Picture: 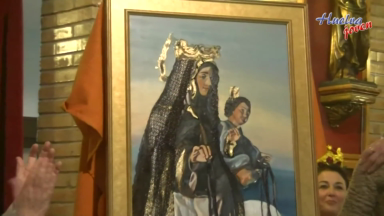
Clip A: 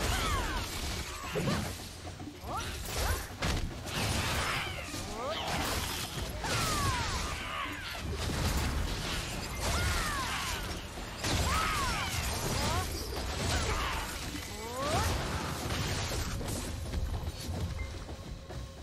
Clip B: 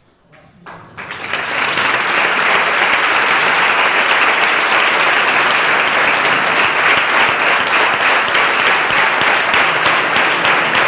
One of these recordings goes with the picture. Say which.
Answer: B